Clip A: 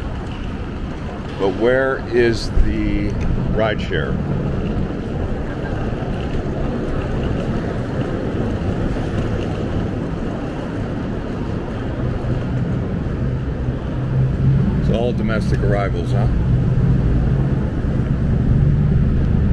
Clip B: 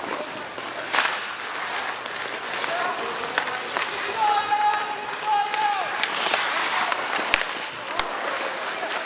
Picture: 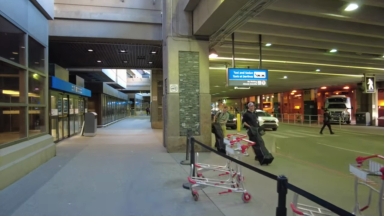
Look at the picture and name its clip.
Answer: A